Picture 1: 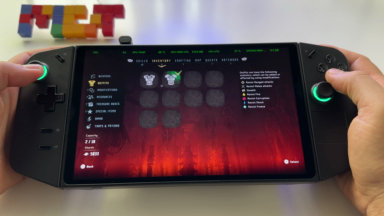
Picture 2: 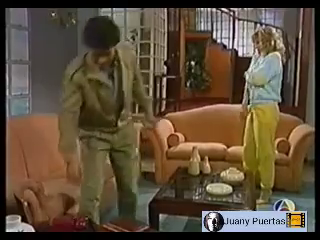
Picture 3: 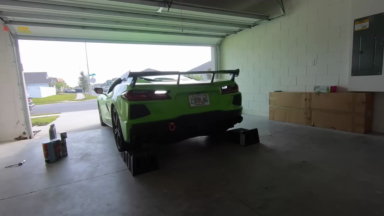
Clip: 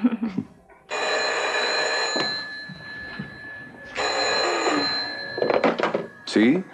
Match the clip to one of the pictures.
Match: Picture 2